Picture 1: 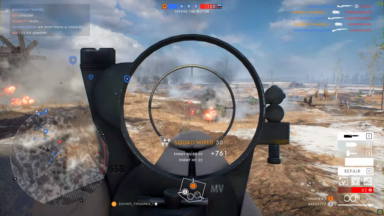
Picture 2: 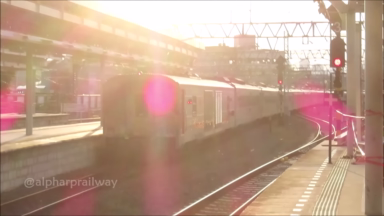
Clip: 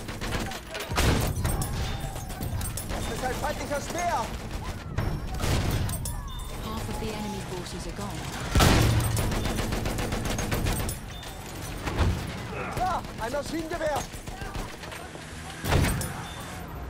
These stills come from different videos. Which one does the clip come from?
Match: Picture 1